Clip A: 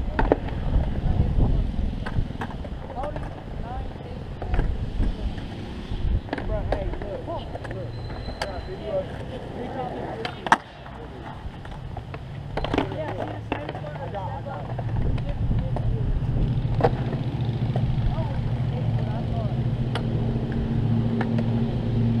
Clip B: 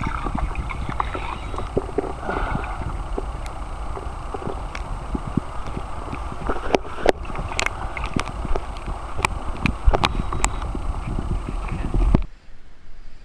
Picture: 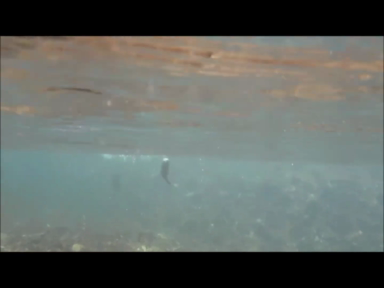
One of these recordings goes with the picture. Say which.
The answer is B